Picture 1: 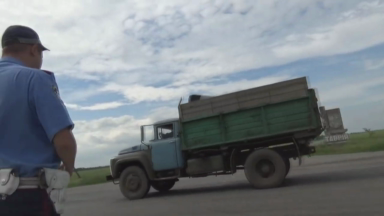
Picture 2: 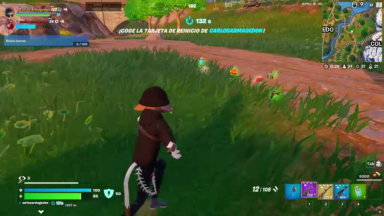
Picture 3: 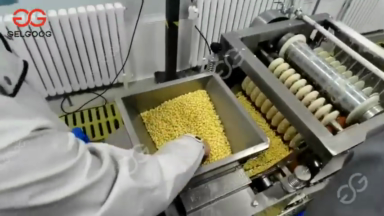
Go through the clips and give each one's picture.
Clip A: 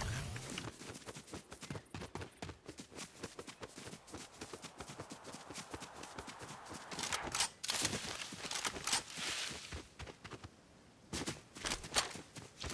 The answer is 2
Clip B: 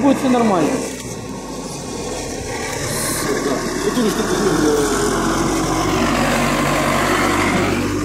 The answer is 1